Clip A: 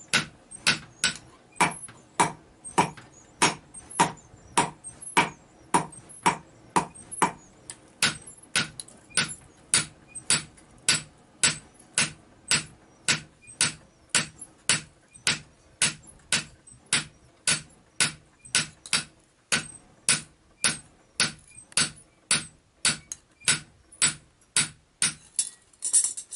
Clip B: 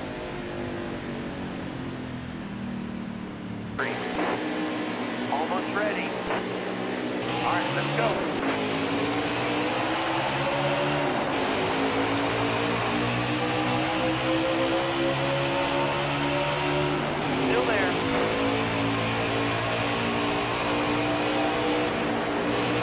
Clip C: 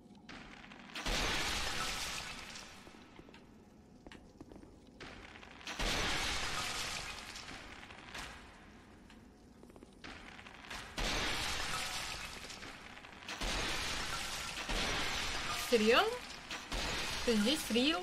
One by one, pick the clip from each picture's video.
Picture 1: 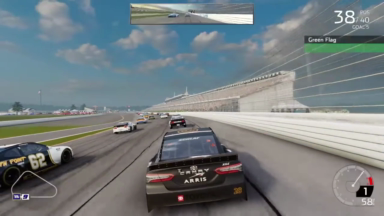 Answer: B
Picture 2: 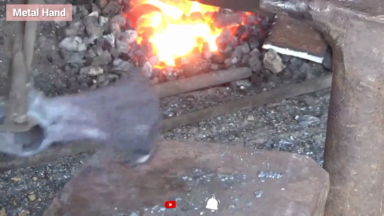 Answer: A